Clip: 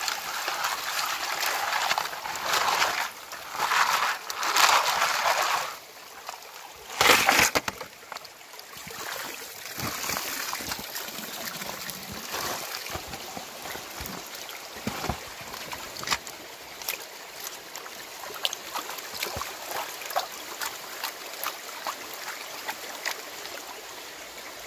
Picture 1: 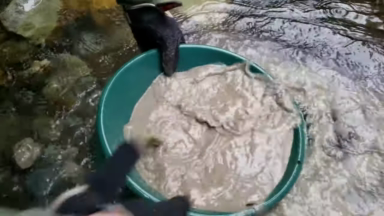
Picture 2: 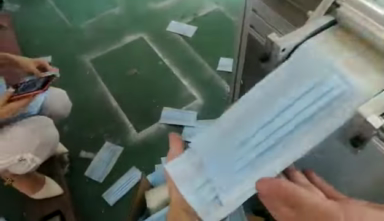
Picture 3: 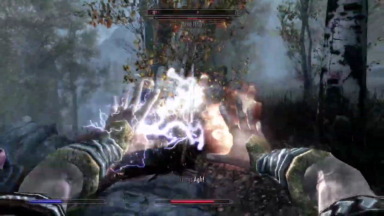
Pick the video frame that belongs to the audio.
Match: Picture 1